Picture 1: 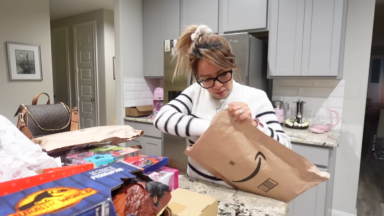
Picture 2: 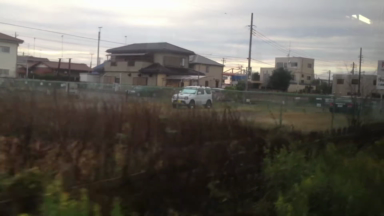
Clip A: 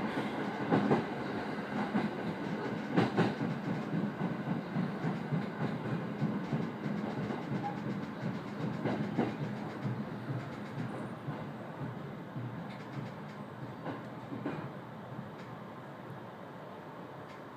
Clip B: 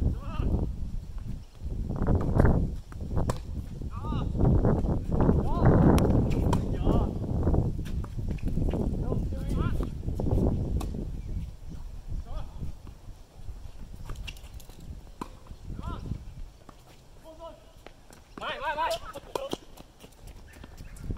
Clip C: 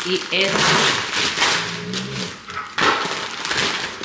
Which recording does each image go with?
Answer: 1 C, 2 A